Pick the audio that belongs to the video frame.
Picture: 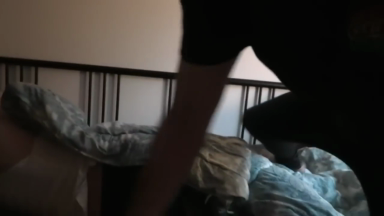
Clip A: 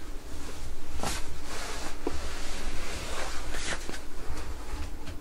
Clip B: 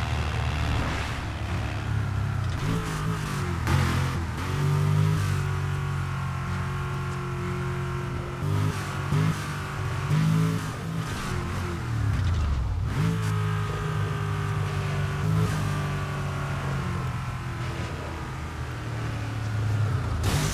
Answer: A